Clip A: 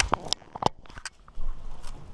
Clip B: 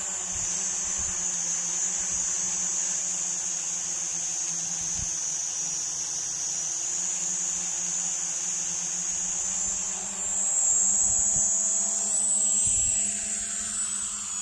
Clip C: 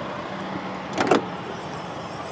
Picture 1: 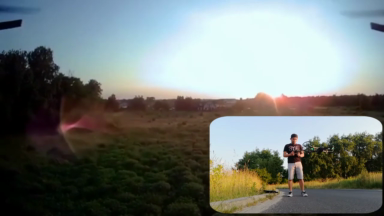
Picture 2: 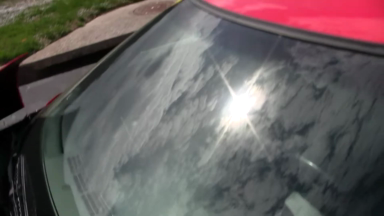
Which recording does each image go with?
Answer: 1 B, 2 C